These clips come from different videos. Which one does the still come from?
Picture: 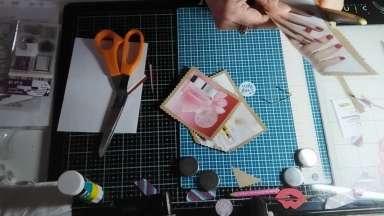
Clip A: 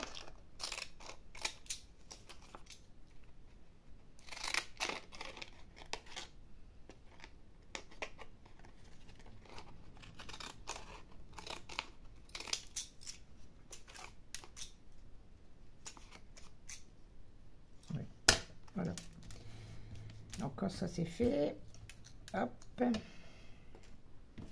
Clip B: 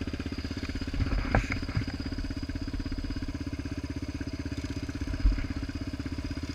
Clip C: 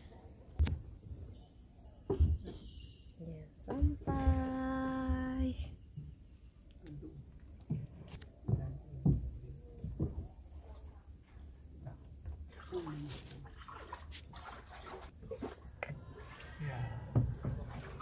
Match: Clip A